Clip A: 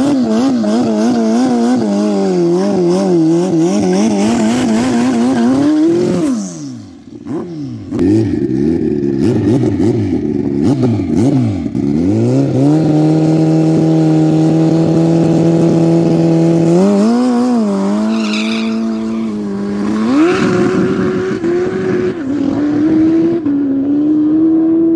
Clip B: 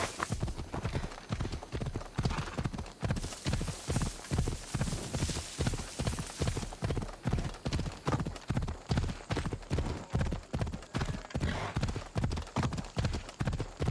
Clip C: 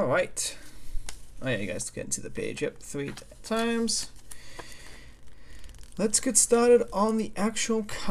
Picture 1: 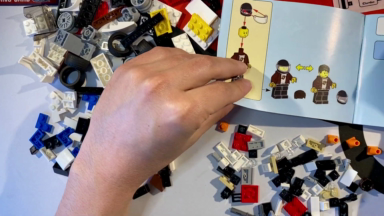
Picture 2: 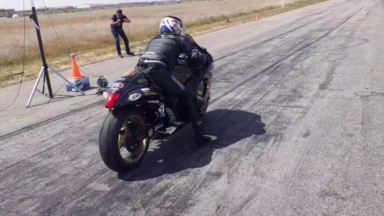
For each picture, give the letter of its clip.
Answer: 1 C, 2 A